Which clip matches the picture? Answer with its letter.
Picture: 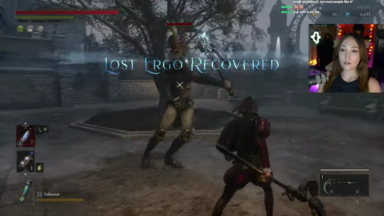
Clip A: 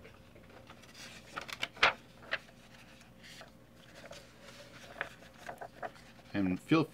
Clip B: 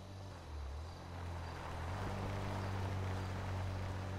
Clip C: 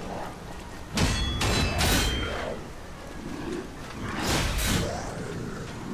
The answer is C